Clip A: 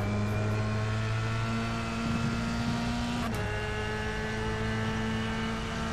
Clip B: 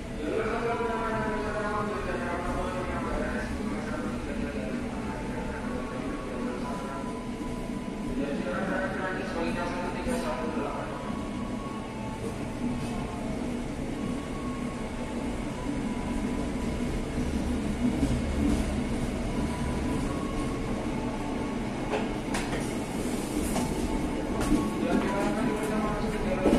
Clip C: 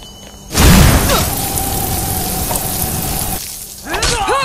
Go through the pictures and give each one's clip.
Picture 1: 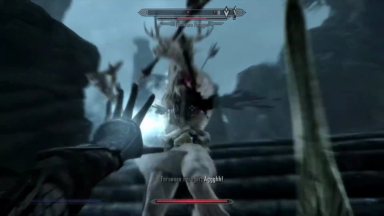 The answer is C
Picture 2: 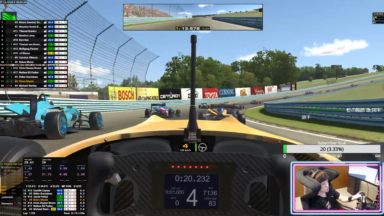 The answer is A